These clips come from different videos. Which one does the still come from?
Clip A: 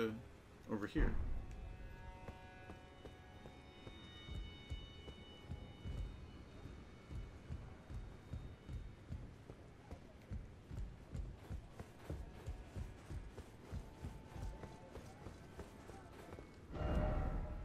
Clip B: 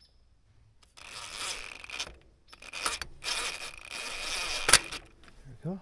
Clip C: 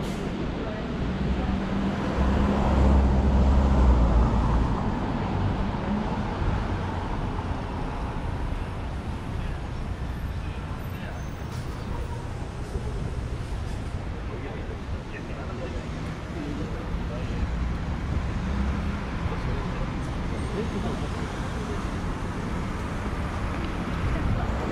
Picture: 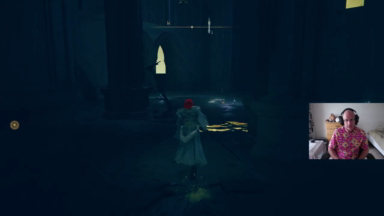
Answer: A